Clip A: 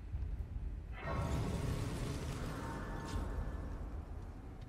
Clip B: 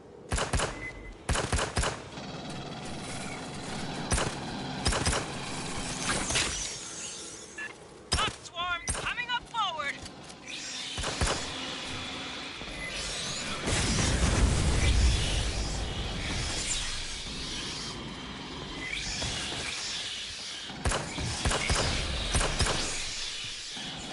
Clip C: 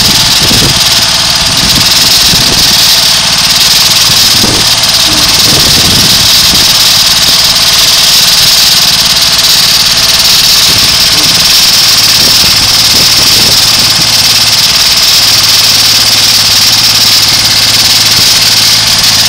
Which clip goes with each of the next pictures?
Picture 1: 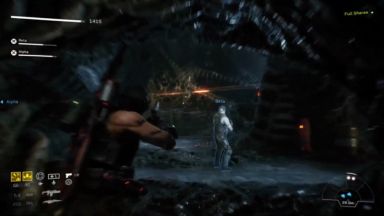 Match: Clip B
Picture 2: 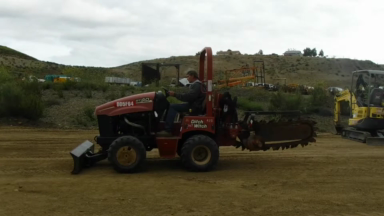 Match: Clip C